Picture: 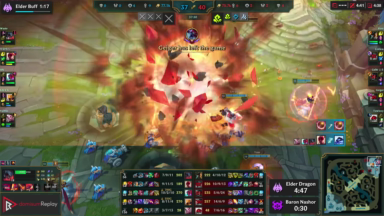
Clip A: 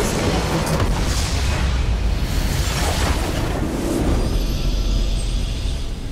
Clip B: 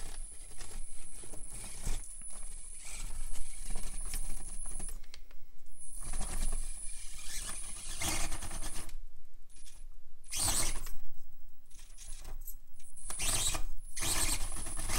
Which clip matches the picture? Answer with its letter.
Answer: A